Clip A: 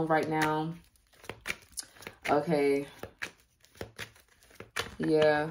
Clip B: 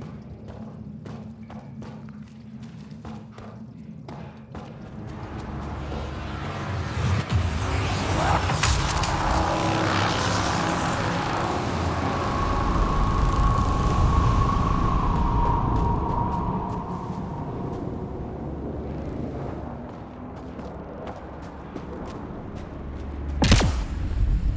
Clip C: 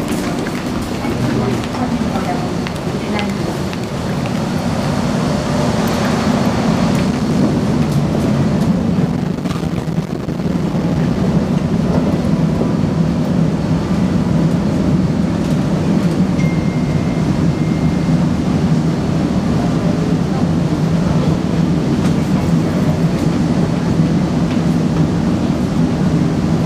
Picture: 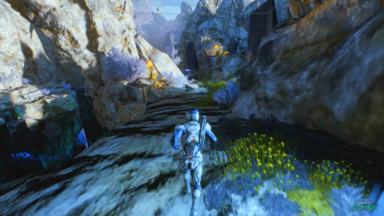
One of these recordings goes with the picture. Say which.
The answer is B